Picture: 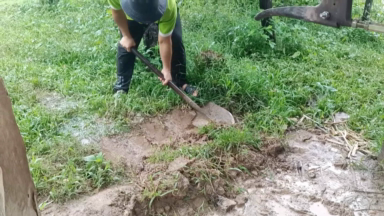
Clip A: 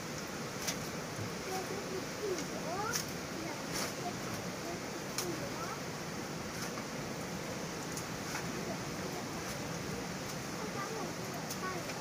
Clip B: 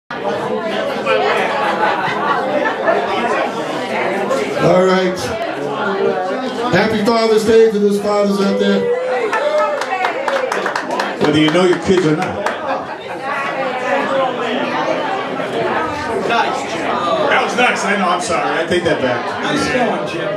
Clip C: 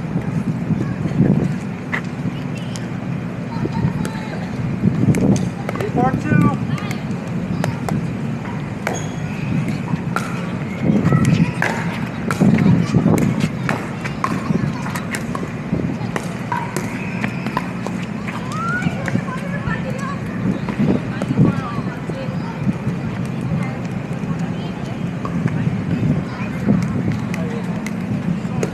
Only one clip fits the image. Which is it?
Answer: A